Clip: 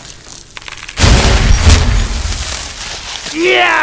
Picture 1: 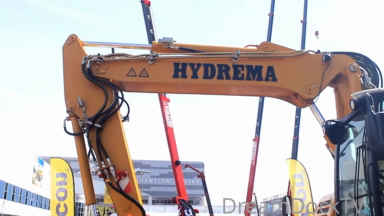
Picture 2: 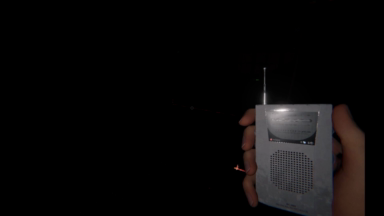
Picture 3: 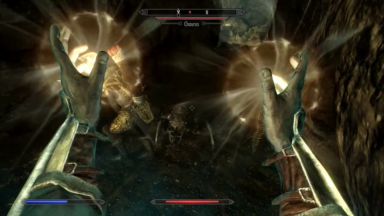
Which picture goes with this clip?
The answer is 3